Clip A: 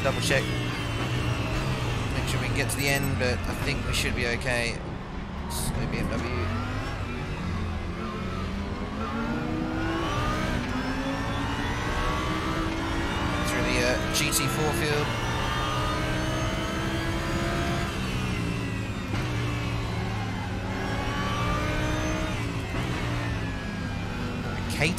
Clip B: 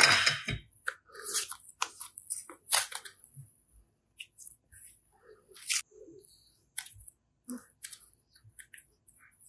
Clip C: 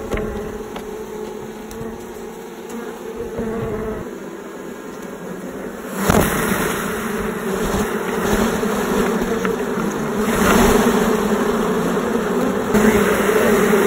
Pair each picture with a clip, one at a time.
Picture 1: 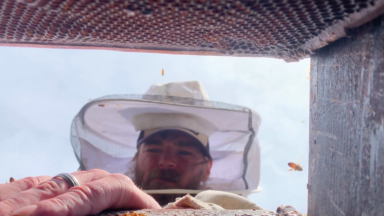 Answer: C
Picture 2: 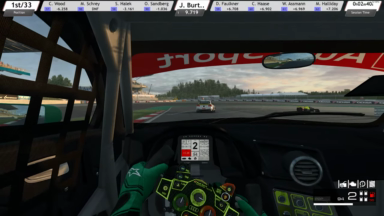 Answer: A